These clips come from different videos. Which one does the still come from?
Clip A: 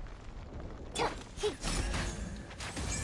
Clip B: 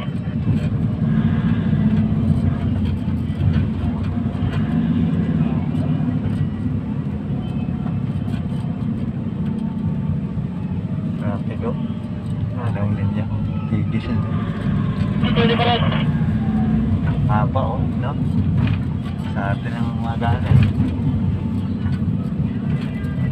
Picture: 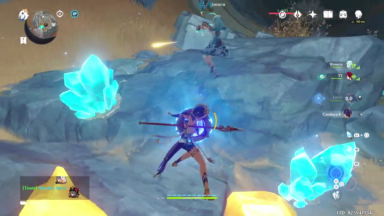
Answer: A